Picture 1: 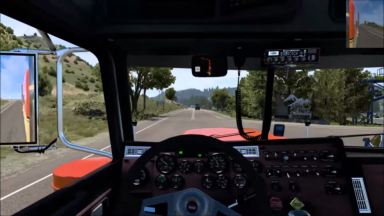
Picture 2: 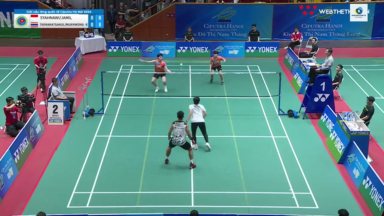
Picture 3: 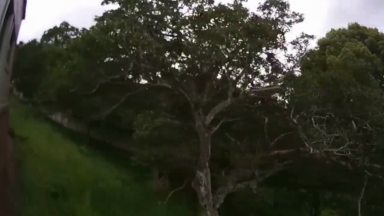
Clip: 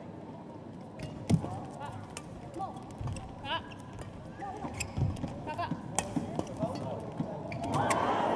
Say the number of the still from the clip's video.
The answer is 2